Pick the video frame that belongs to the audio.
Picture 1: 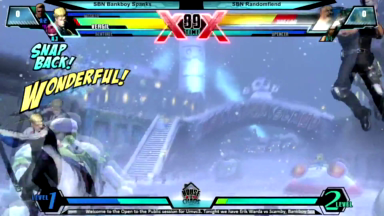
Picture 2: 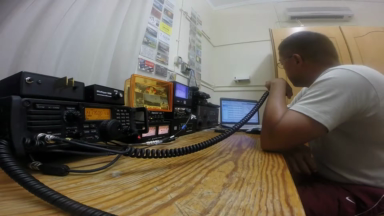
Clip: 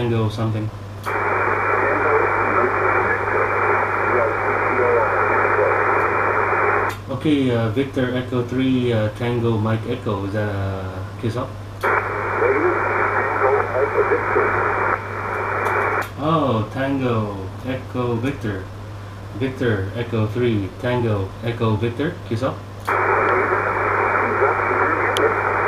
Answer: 2